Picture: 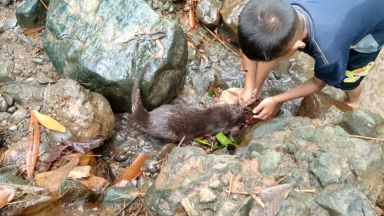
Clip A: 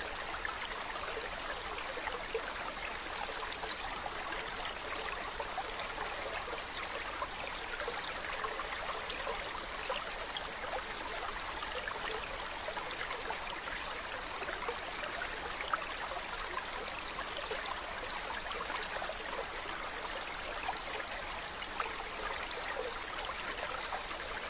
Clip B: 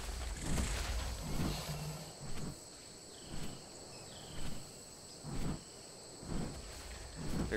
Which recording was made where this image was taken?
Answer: A